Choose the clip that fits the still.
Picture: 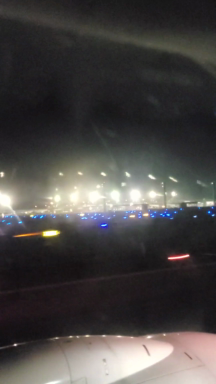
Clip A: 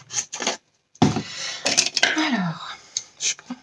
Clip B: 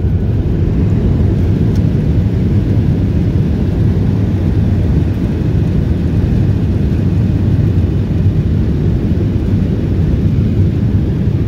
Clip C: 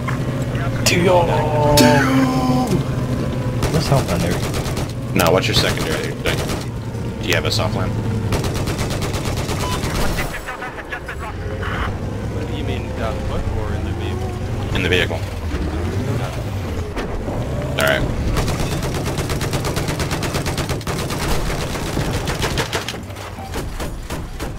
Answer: B